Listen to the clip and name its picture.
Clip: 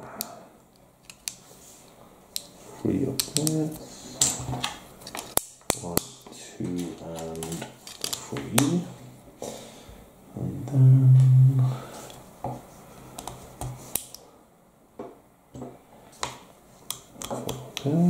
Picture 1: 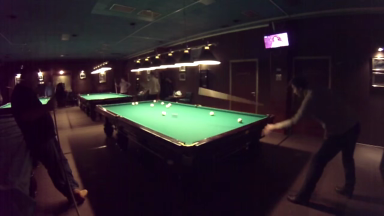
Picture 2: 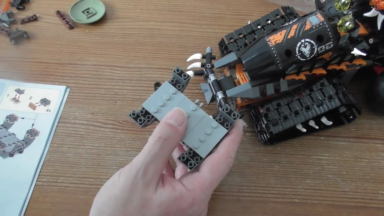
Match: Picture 2